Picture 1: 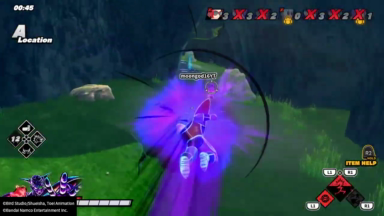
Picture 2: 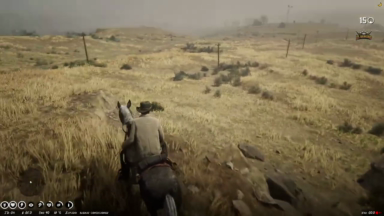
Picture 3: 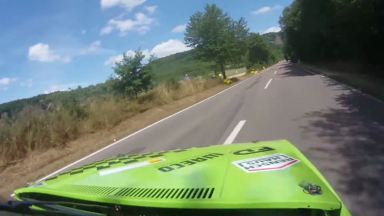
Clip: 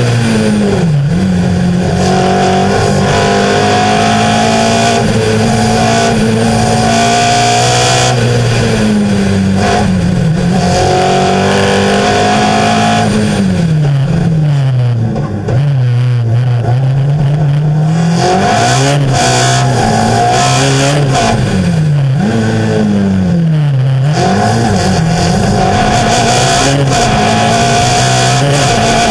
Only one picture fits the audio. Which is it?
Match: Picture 3